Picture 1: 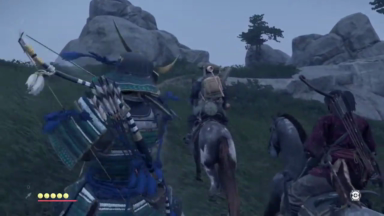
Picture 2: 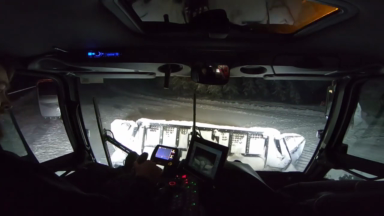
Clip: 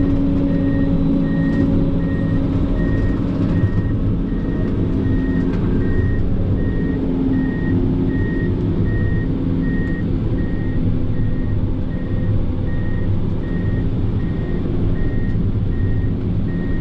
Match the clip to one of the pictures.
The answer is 2